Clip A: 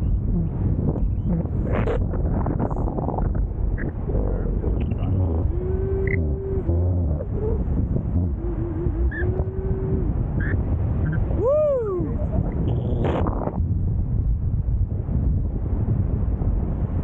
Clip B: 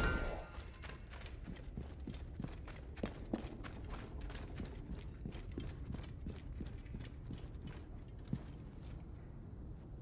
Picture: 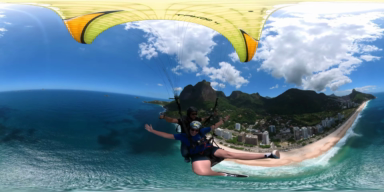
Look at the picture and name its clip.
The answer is A